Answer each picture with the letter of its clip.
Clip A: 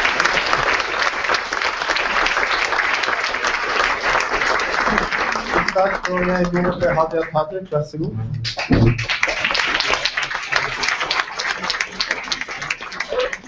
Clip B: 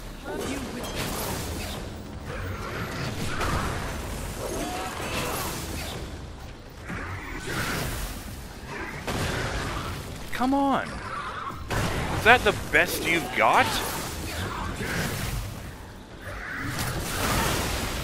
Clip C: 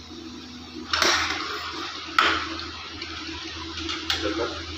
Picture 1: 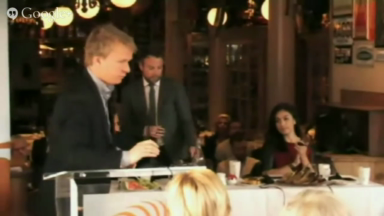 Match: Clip A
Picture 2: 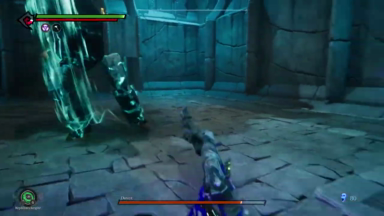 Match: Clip B